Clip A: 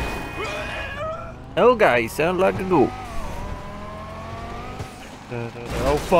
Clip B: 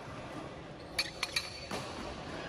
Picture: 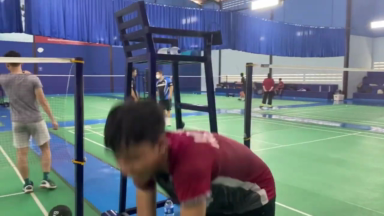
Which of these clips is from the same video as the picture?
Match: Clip B